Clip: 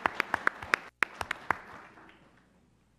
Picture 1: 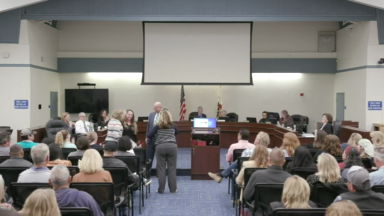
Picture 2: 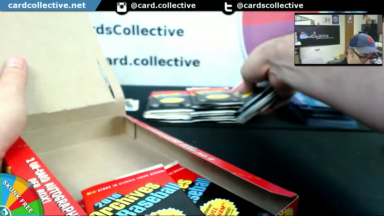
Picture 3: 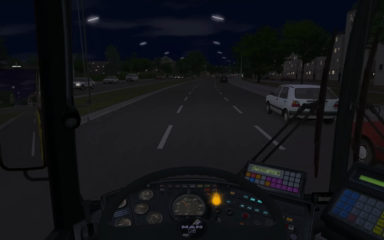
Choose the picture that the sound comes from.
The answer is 1